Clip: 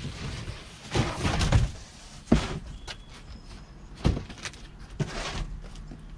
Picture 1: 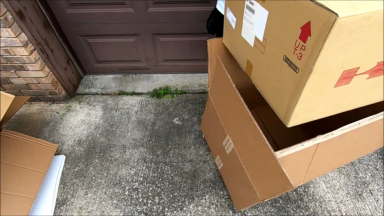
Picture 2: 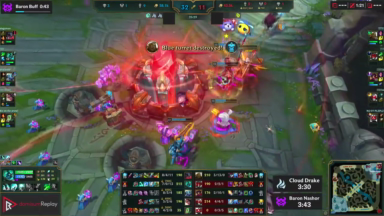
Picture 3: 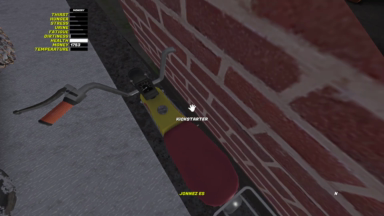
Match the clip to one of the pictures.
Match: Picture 1